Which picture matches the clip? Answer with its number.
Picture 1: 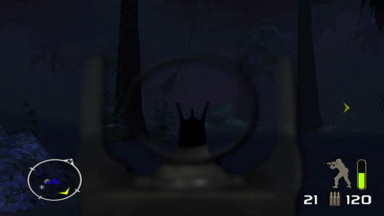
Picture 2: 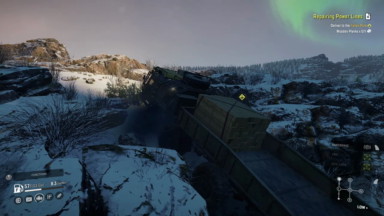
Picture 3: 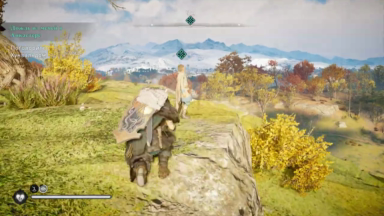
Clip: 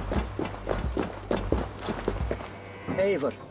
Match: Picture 3